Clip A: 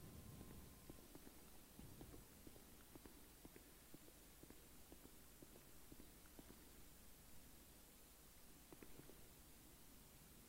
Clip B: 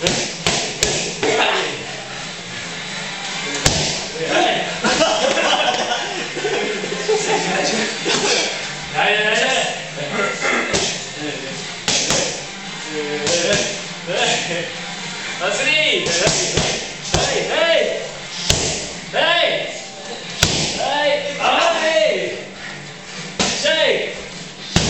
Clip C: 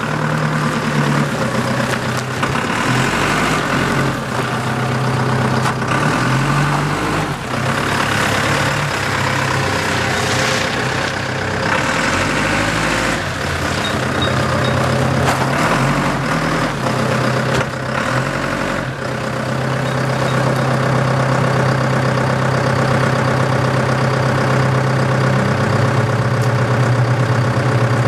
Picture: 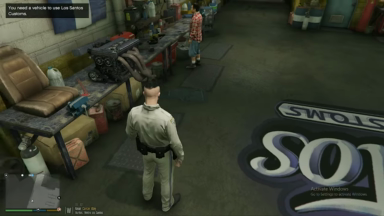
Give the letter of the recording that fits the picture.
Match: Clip A